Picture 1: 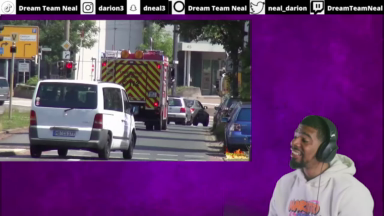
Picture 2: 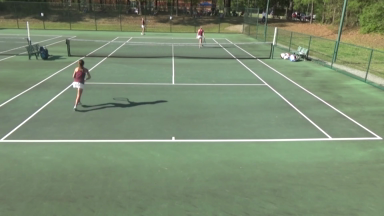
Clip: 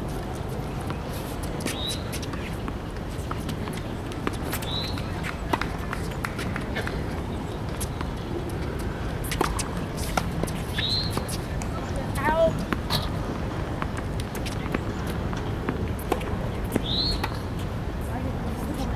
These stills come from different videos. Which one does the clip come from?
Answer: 2